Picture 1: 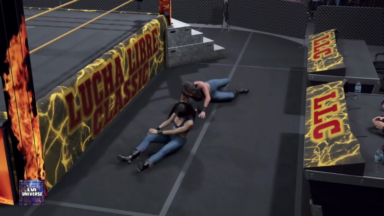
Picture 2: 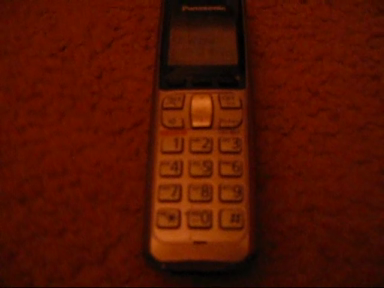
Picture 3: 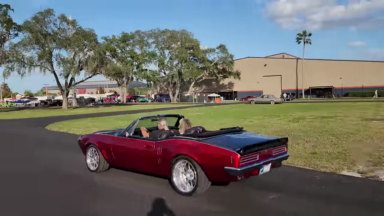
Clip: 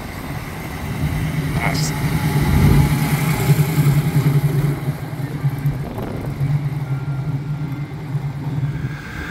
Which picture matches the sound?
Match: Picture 3